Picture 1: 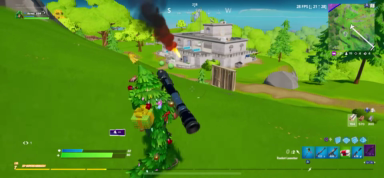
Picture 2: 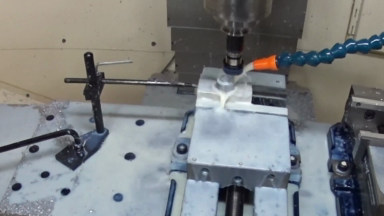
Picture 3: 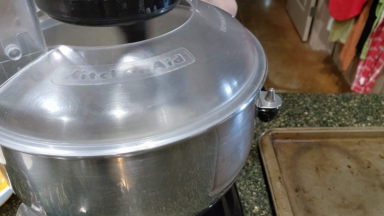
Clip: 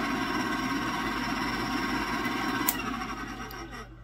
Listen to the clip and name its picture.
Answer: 3